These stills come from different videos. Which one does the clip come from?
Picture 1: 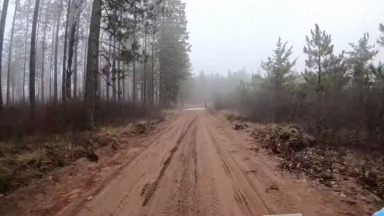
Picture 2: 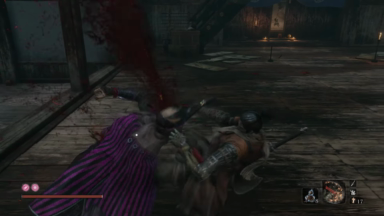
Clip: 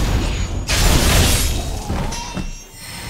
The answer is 2